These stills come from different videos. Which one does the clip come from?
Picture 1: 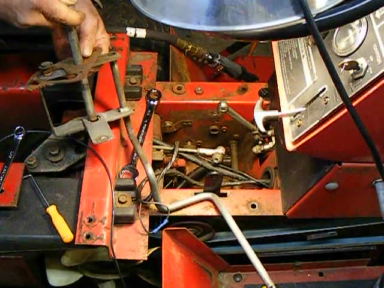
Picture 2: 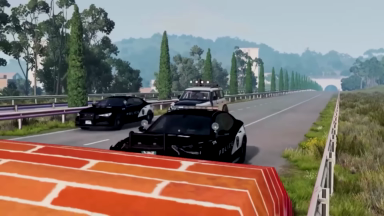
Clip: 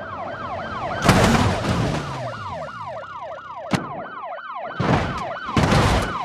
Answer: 2